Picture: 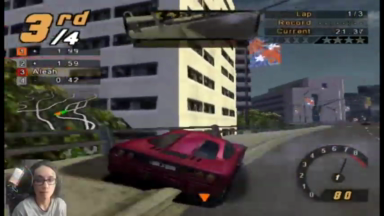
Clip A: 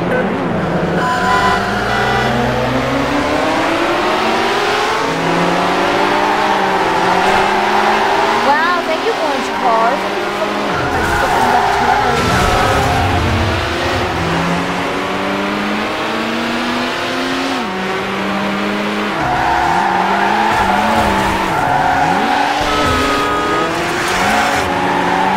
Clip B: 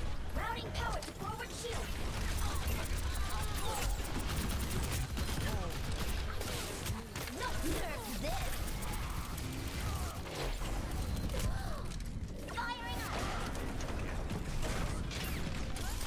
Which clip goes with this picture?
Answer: A